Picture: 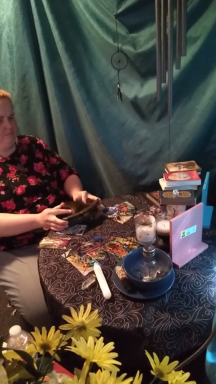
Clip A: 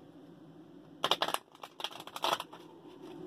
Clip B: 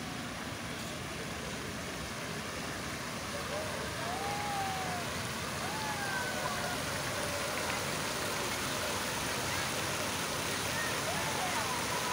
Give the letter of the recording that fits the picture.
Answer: A